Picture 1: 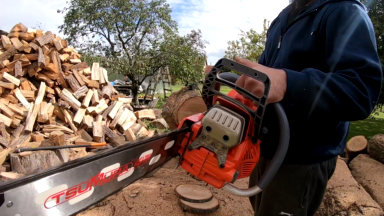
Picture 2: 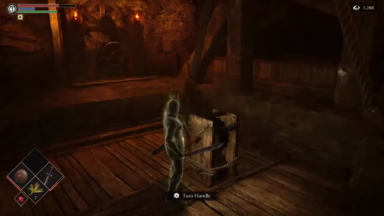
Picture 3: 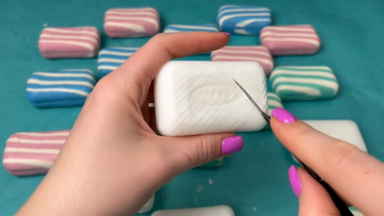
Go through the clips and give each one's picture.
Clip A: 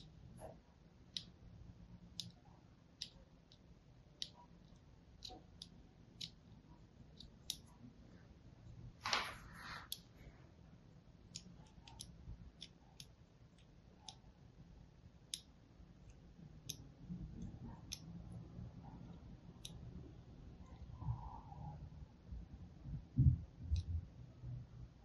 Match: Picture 3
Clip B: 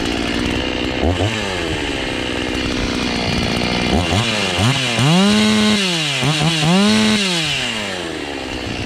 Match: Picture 1